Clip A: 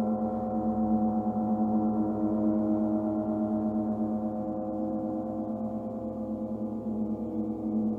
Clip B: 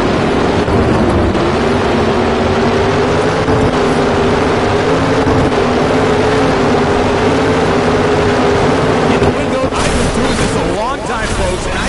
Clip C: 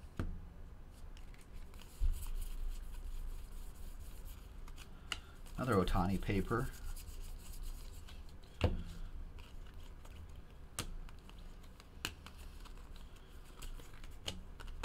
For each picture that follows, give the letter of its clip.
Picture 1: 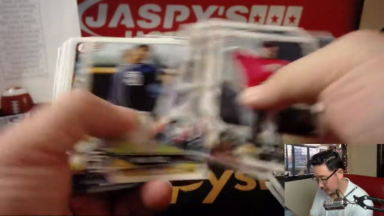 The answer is C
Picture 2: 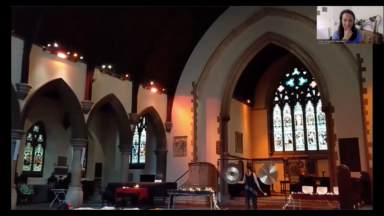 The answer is A